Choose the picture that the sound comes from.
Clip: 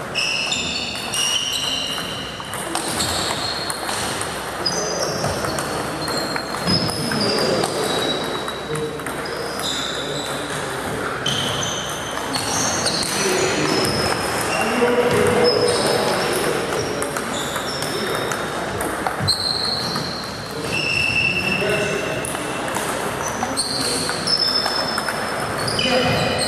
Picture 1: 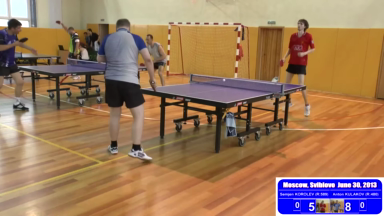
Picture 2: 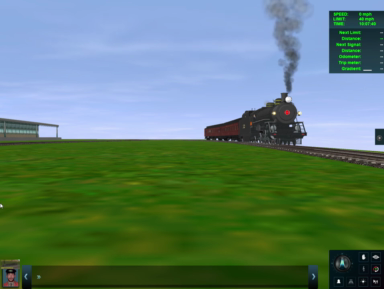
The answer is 1